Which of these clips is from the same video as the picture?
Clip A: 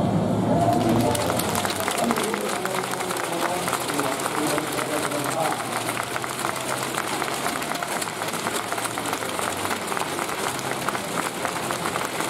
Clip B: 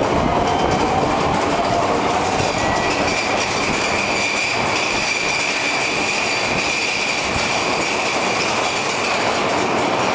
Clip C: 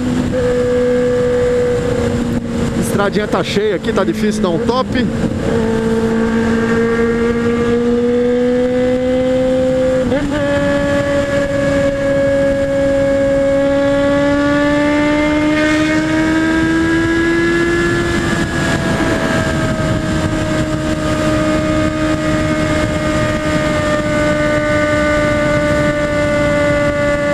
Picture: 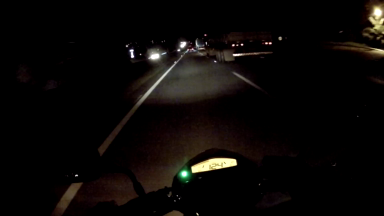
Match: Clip C